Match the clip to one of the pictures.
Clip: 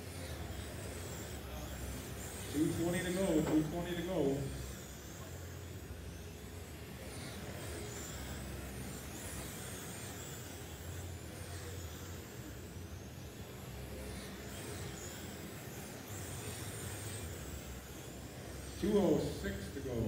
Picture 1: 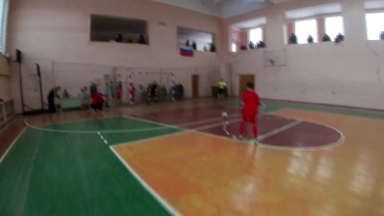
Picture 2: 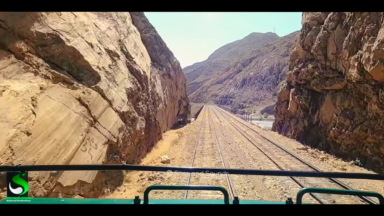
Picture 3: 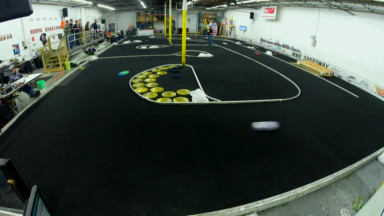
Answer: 3